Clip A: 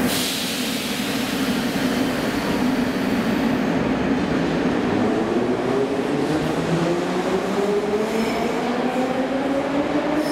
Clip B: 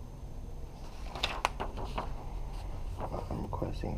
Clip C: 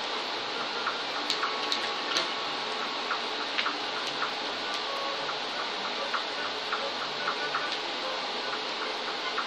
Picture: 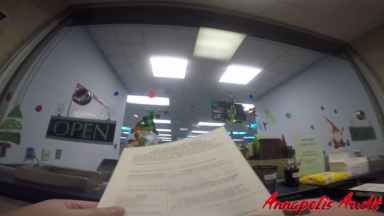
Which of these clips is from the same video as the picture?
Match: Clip B